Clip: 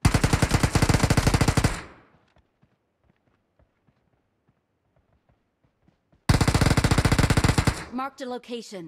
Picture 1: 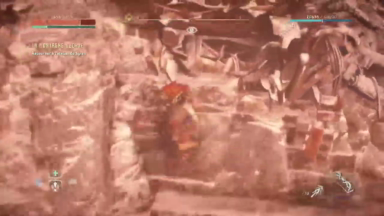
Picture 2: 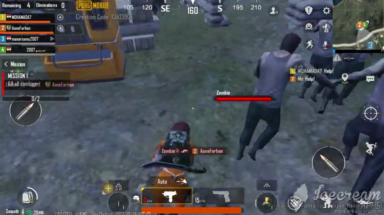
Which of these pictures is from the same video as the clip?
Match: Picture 2